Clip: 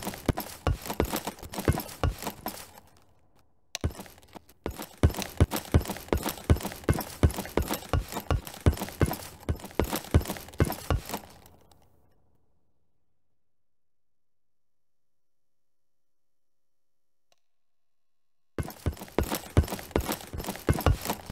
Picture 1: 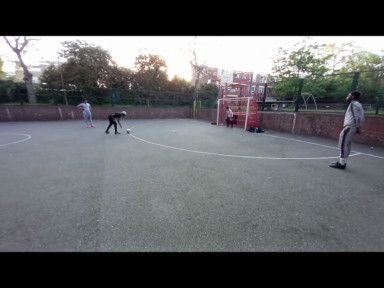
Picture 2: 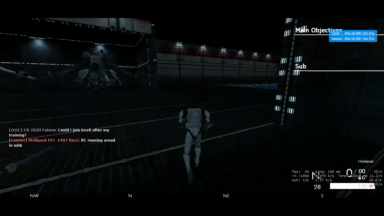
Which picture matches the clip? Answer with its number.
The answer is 2